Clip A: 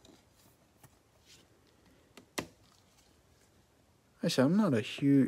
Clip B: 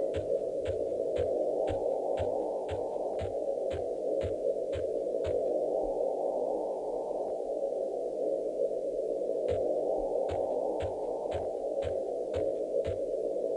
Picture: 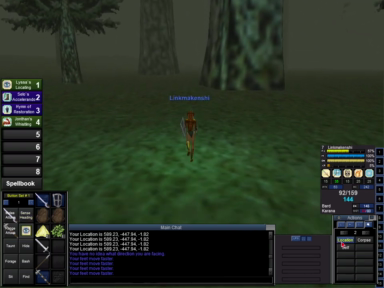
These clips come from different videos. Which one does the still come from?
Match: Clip B